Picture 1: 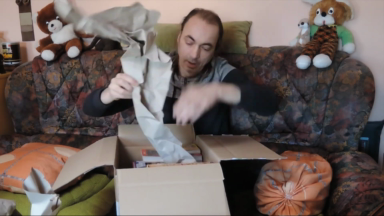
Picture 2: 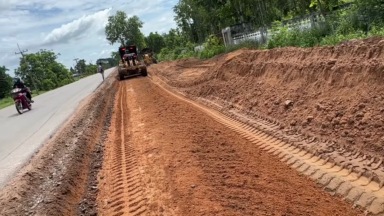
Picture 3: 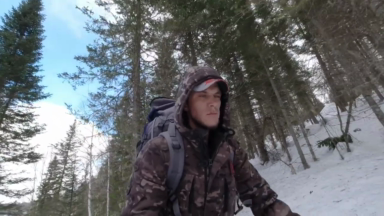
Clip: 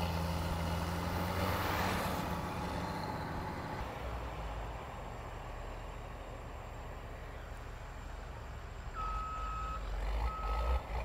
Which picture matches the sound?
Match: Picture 2